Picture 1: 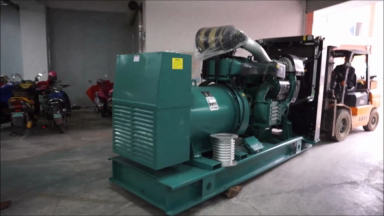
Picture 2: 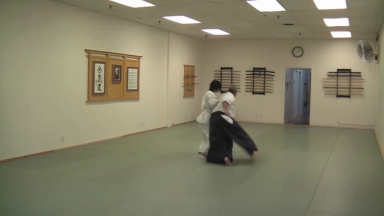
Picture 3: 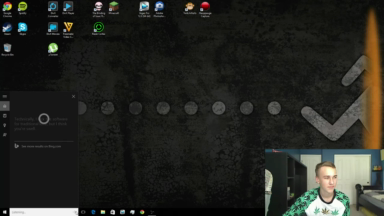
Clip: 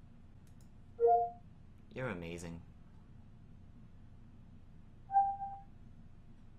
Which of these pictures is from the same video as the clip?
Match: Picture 3